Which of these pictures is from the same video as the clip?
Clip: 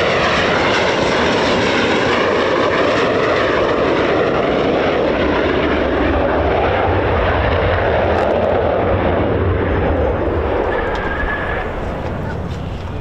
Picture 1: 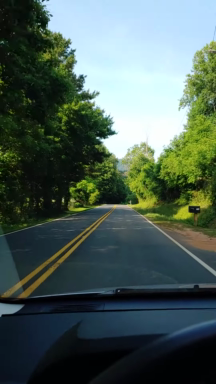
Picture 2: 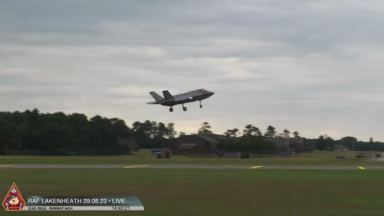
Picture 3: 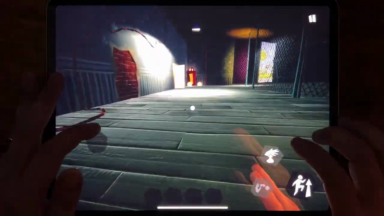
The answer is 2